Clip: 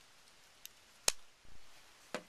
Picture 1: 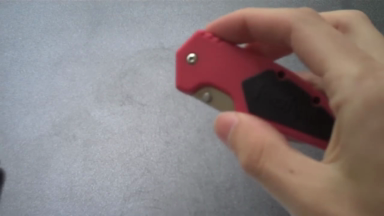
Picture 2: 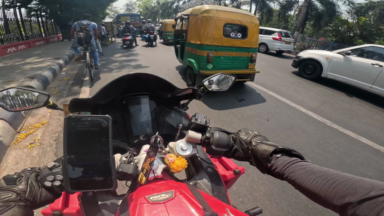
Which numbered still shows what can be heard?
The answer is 1